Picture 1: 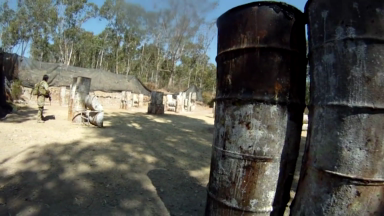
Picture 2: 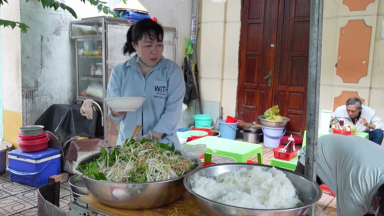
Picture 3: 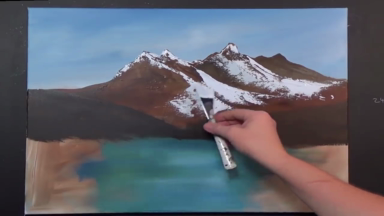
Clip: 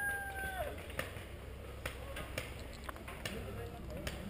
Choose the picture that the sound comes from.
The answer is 1